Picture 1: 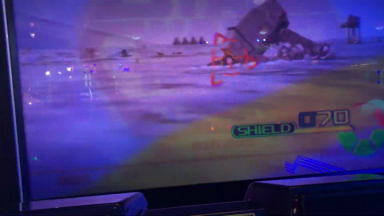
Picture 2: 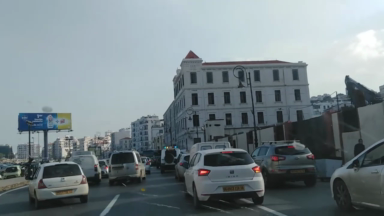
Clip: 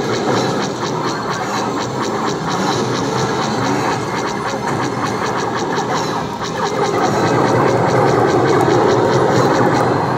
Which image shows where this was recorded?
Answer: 1